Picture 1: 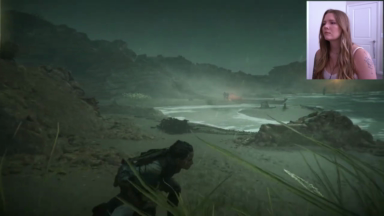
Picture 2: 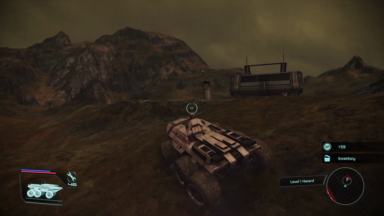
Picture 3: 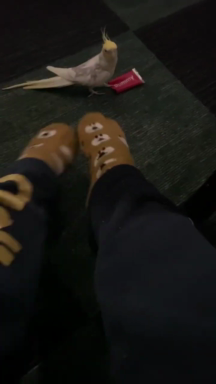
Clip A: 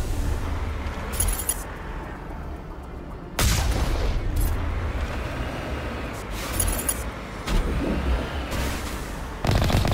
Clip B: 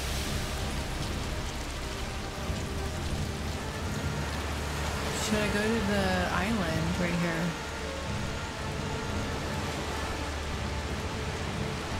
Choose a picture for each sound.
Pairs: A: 2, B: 1